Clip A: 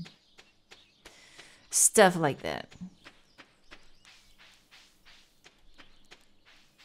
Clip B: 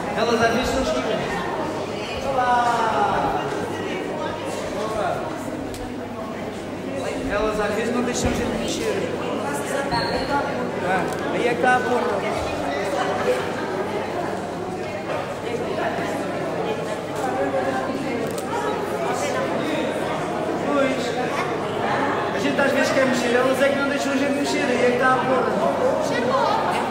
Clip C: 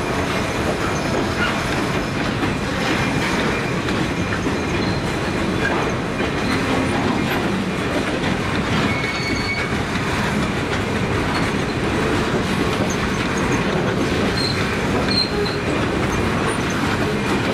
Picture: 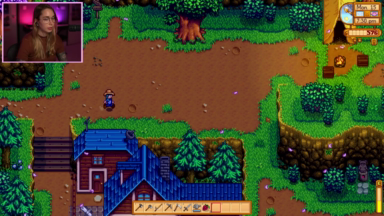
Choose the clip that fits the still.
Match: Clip A